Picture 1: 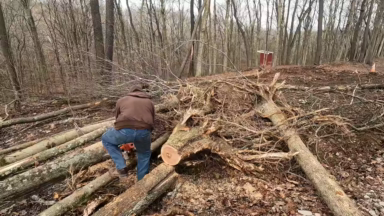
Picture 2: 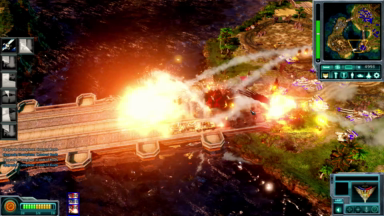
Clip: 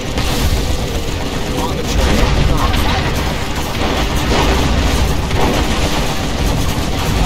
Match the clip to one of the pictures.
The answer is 2